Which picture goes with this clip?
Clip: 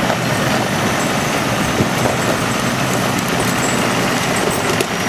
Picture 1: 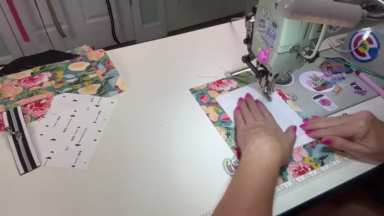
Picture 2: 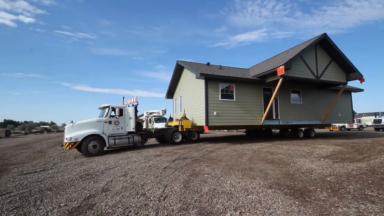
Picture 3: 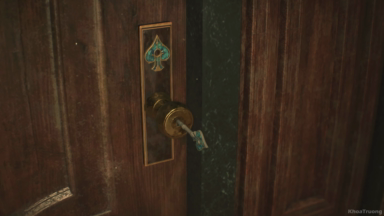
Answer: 2